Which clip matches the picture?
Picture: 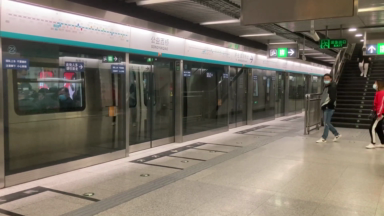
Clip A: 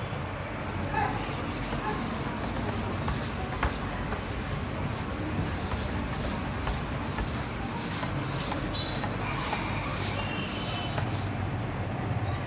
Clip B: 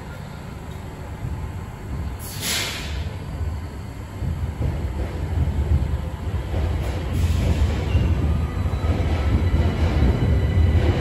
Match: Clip B